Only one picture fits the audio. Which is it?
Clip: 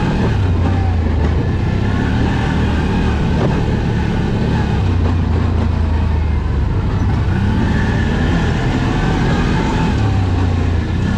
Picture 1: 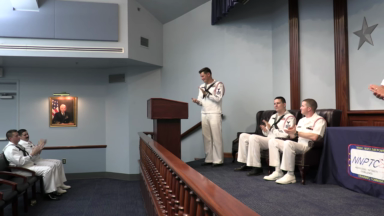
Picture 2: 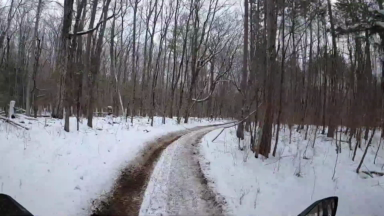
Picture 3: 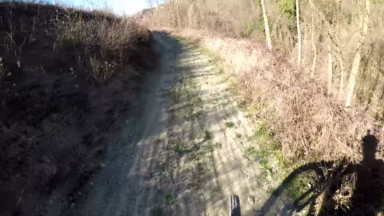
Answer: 2